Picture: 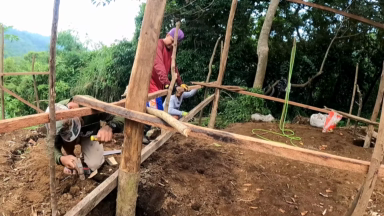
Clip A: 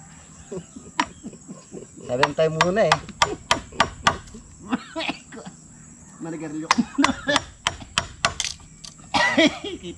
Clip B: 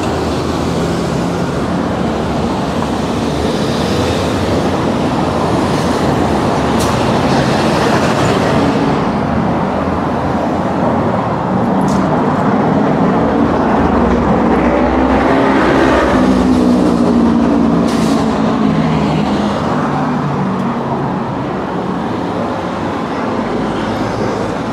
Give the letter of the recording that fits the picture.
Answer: A